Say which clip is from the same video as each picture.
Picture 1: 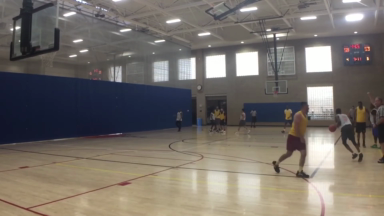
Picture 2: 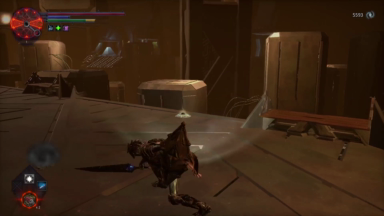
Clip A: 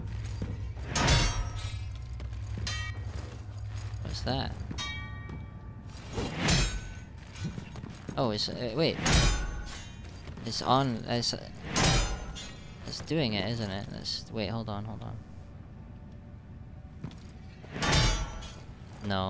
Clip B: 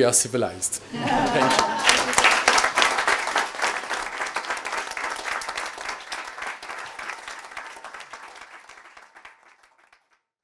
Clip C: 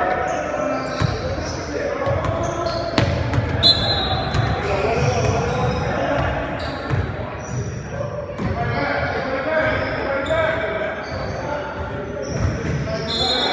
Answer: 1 C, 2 A